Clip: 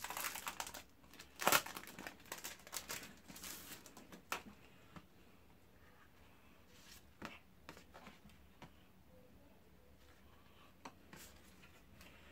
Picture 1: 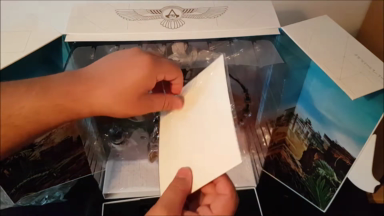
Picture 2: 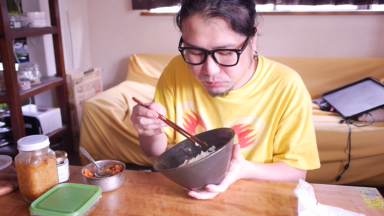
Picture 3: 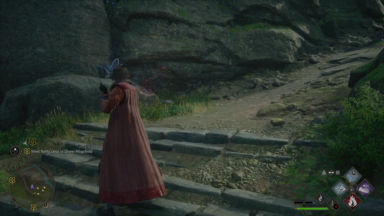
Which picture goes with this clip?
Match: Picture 1